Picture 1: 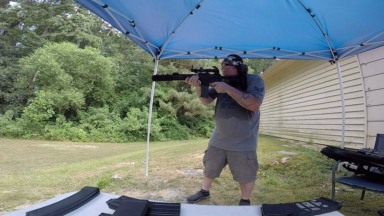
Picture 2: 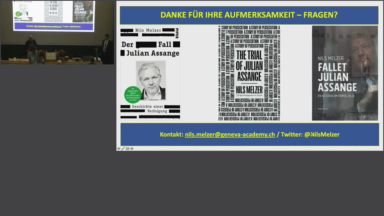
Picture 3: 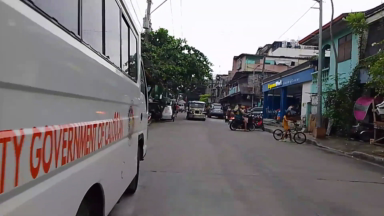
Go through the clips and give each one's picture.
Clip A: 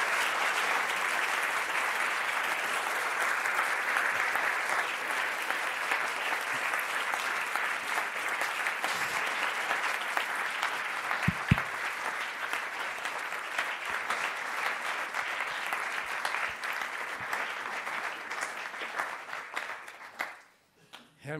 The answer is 2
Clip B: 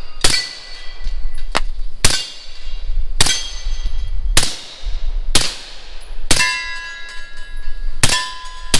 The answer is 1